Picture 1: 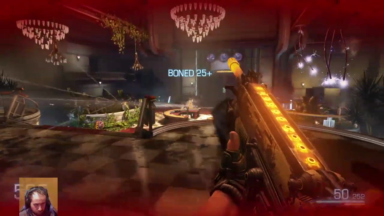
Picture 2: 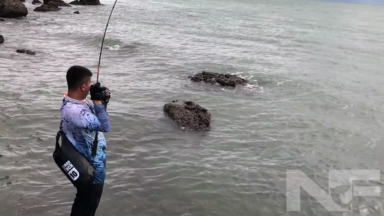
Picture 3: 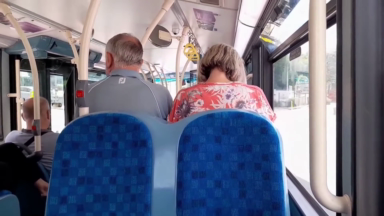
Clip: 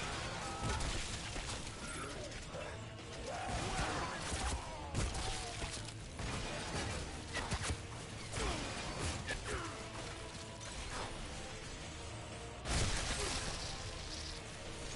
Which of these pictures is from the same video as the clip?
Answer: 1